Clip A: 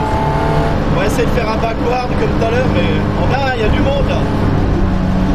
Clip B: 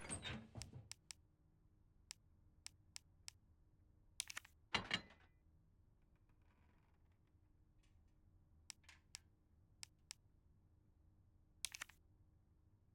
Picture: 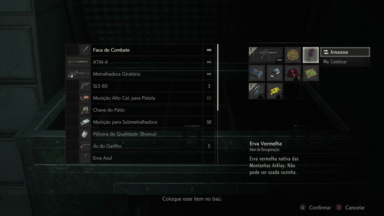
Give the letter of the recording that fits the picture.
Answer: B